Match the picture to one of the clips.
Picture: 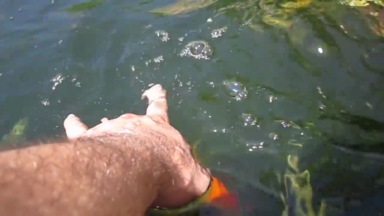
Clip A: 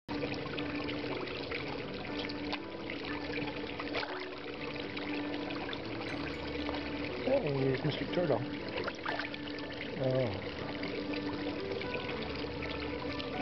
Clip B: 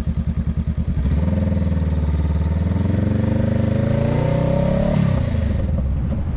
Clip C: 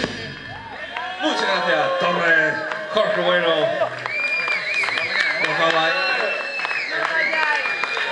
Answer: A